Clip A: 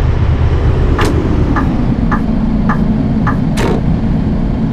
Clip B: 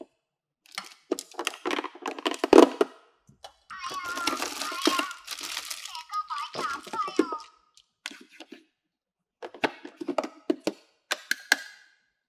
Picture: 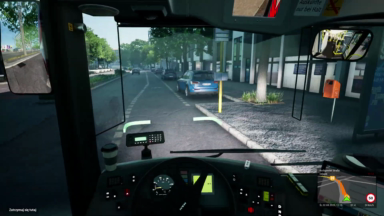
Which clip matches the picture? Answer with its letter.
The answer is A